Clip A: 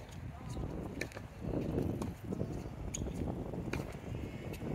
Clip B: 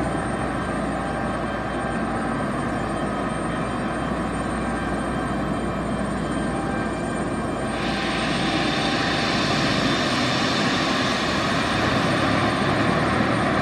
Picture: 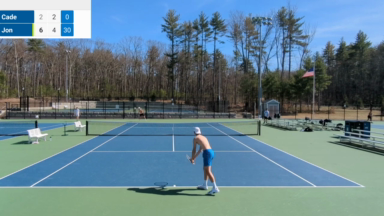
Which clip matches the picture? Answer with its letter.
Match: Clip A